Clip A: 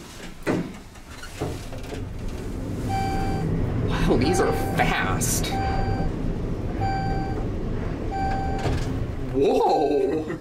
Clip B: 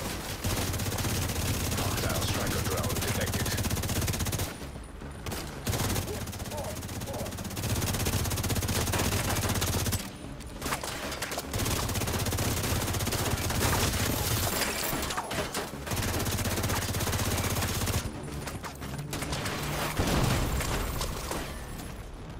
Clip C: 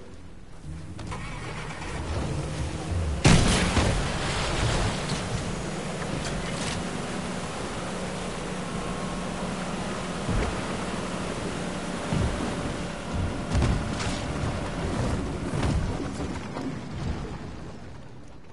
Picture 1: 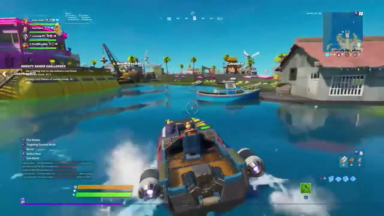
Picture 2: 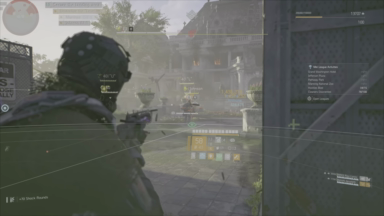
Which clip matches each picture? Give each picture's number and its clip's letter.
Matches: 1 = C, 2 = B